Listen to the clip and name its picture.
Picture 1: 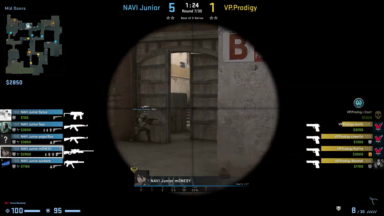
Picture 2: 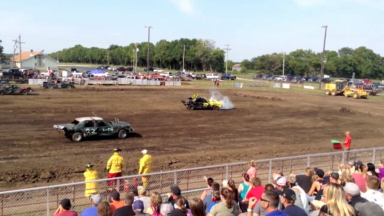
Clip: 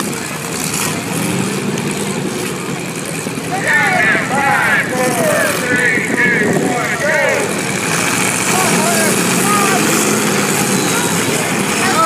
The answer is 2